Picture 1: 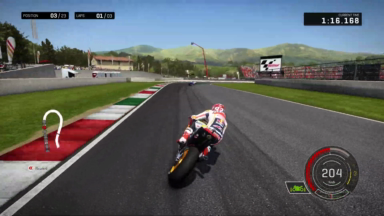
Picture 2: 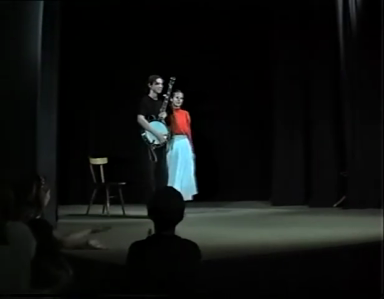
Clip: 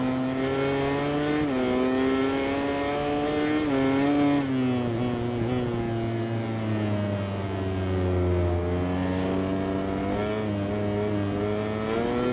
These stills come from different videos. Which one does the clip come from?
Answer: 1